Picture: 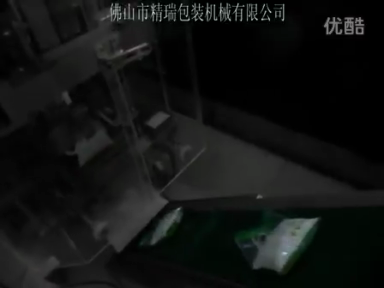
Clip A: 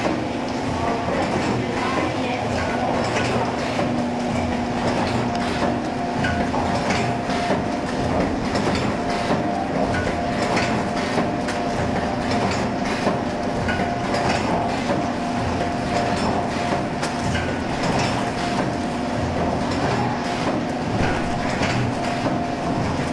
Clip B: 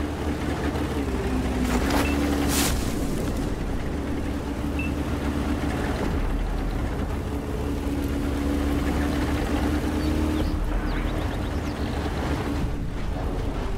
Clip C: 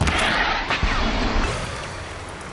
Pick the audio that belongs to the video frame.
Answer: A